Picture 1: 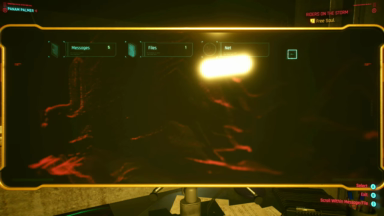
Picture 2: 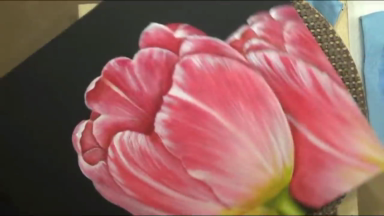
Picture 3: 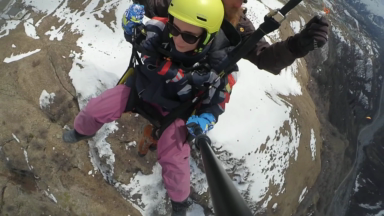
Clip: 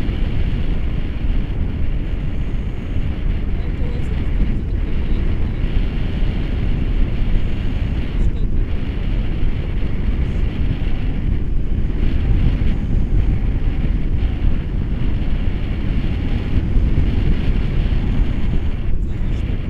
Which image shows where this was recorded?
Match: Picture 3